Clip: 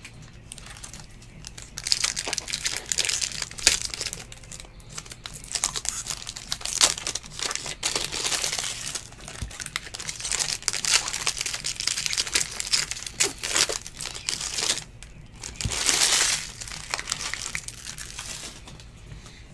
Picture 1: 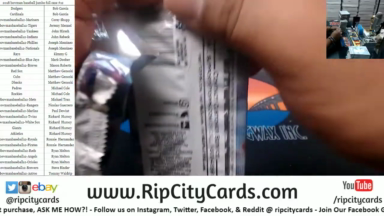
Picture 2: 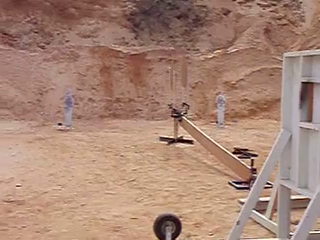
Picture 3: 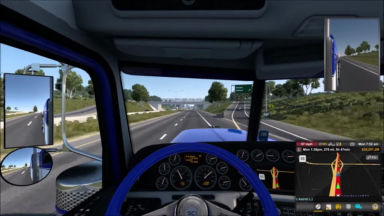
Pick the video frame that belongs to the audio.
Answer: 1